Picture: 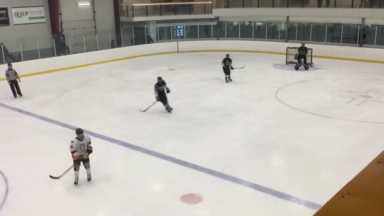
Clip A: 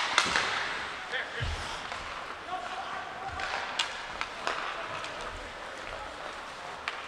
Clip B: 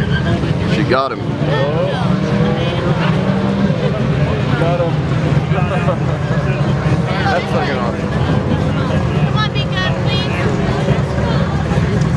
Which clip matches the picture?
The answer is A